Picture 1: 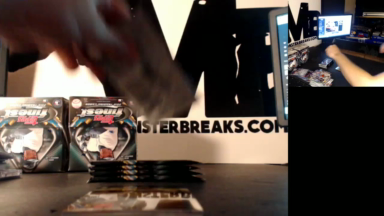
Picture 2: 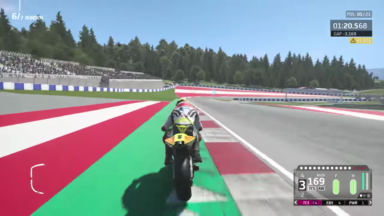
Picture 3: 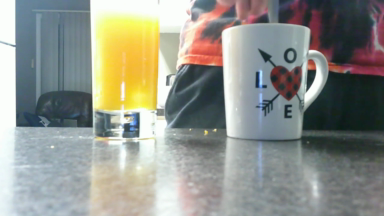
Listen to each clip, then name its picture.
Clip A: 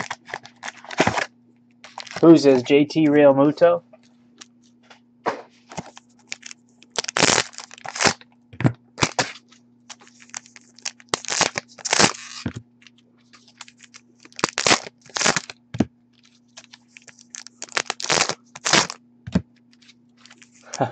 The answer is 1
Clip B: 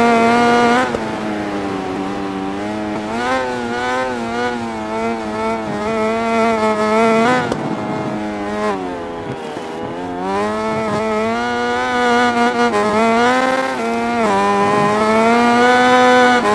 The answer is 2